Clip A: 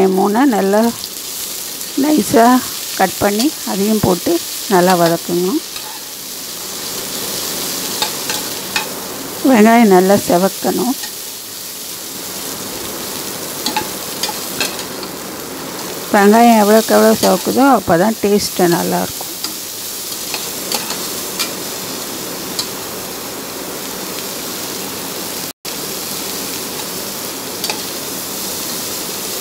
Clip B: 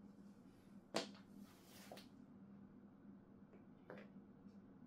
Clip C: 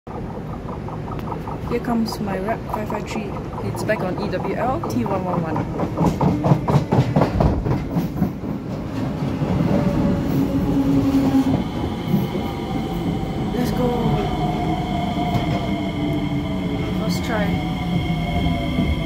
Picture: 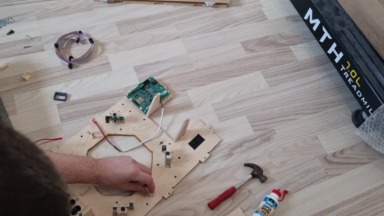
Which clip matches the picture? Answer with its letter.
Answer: B